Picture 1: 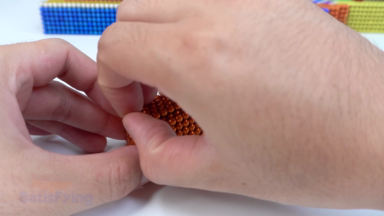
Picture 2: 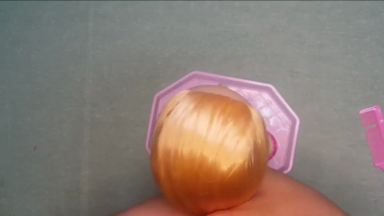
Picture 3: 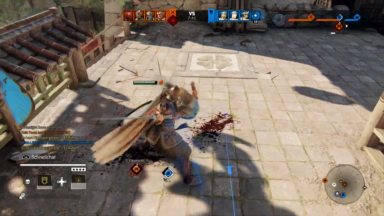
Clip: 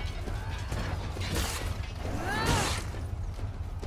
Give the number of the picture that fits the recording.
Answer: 3